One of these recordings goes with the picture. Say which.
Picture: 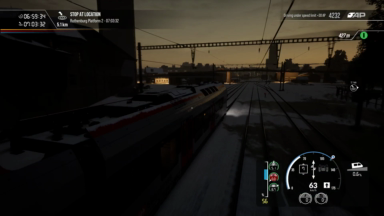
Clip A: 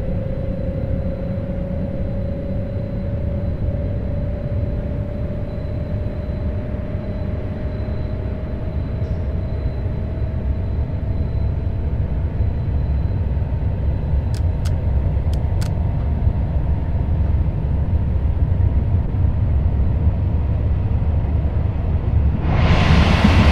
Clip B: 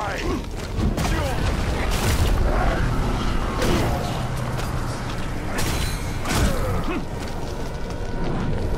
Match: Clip A